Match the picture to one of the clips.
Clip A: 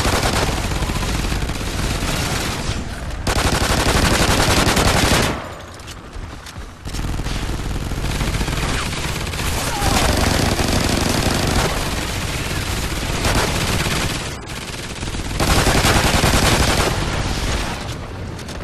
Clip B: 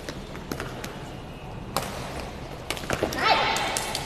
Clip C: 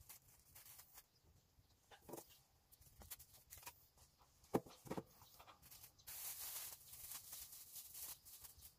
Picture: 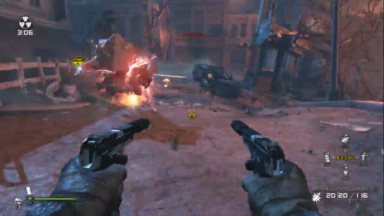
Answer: A